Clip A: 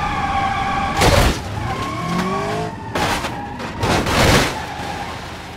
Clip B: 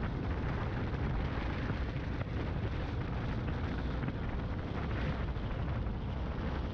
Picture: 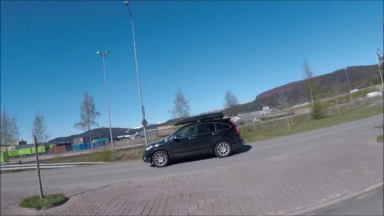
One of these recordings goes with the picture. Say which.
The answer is B